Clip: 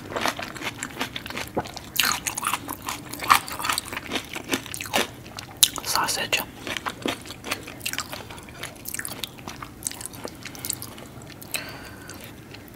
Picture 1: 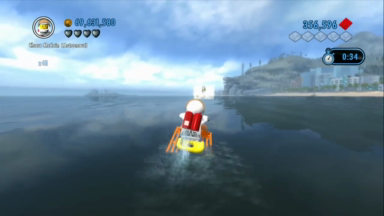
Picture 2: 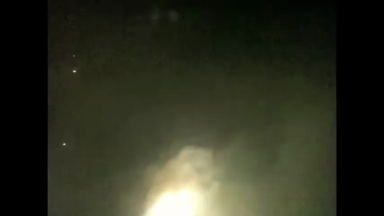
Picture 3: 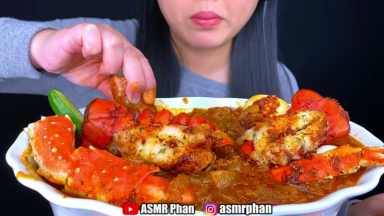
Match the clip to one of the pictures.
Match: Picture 3